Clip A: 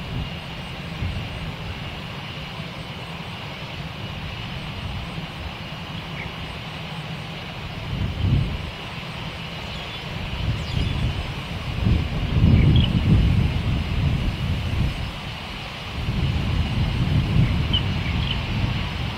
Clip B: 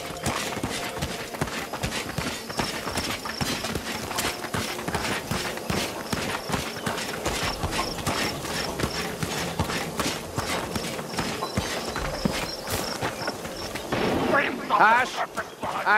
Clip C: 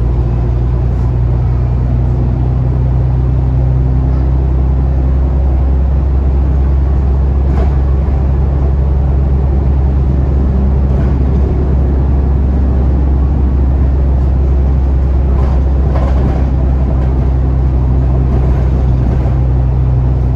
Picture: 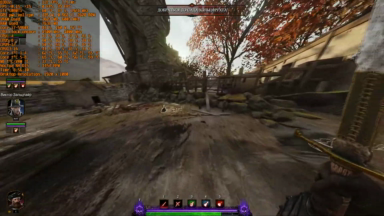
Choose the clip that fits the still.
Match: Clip B